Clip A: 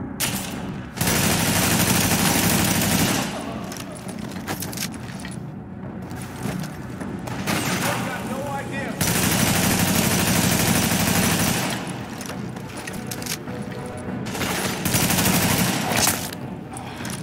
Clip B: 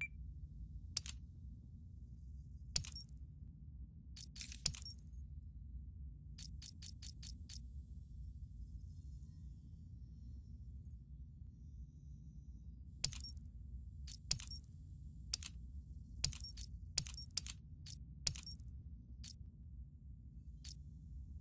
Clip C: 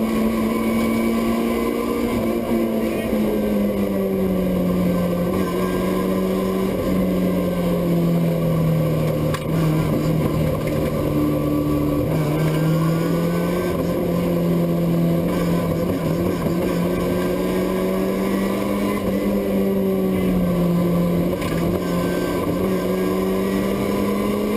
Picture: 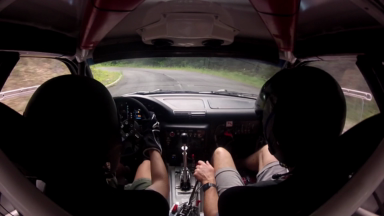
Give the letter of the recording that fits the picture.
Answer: C